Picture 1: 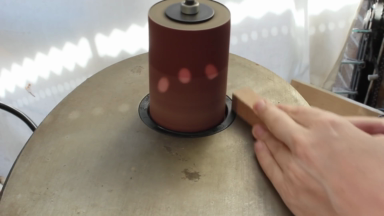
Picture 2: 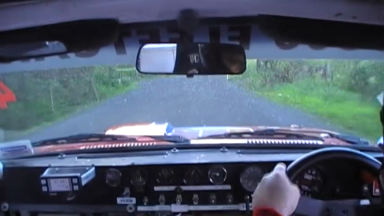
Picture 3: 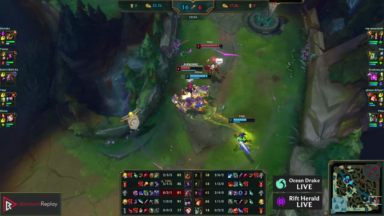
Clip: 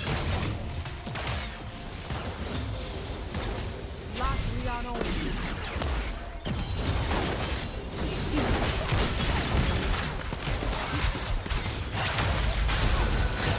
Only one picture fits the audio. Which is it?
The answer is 3